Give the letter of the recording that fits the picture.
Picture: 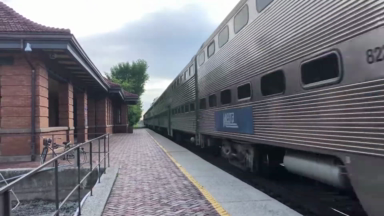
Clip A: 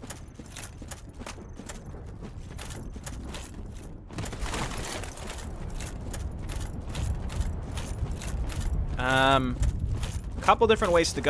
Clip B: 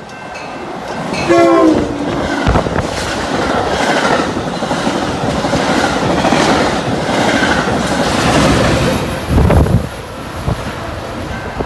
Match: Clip B